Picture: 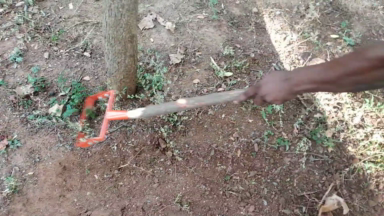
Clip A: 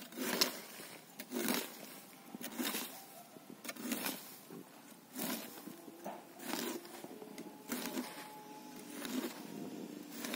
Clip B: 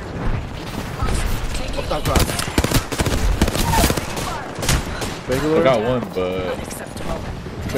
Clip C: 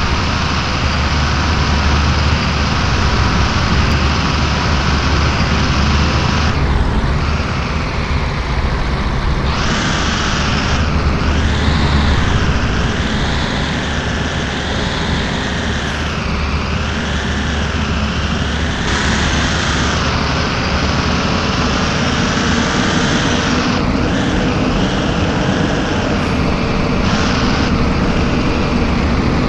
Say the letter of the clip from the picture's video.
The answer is A